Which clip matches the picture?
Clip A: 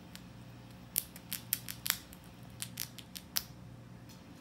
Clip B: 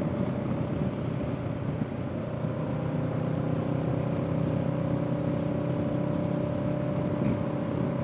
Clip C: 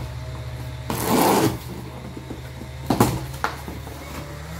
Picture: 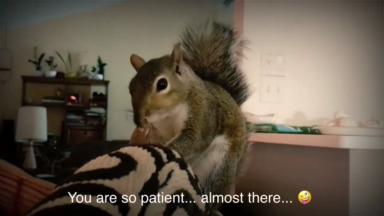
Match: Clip A